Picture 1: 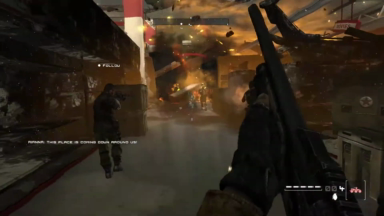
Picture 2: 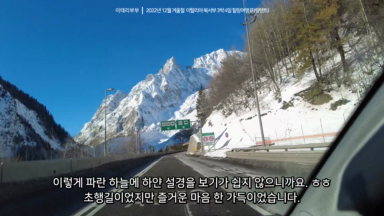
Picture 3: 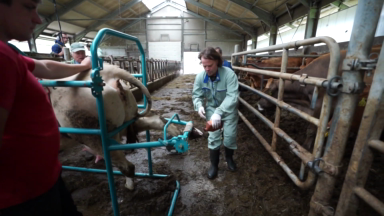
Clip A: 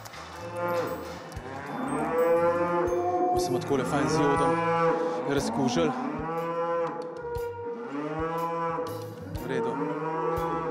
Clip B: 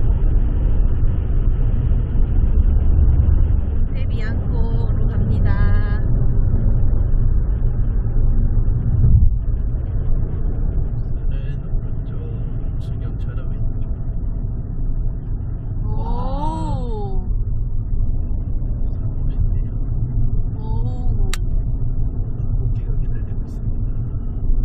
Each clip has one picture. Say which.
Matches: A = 3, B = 2